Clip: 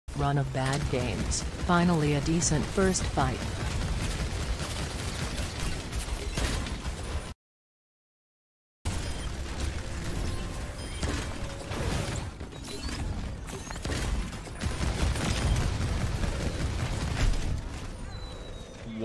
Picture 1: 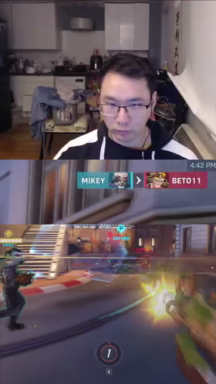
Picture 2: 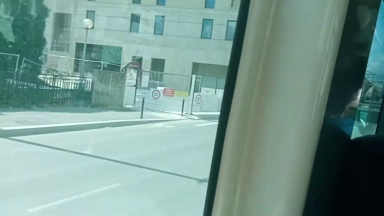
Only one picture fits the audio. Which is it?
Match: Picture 1